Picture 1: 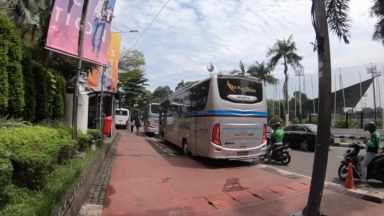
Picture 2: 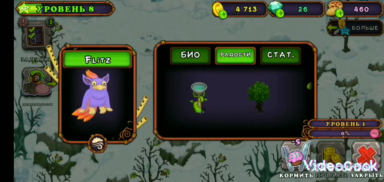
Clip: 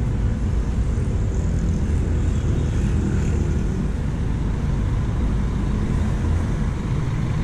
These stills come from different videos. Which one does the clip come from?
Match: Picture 1